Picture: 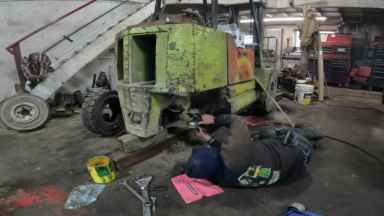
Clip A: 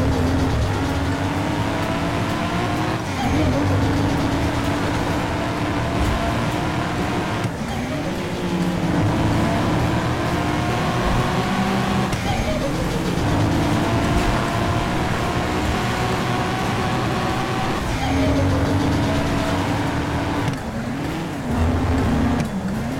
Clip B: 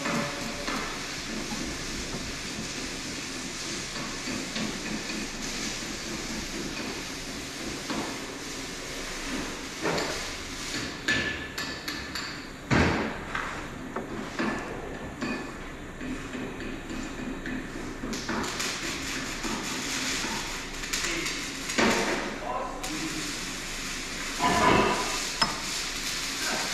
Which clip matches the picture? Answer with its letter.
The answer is B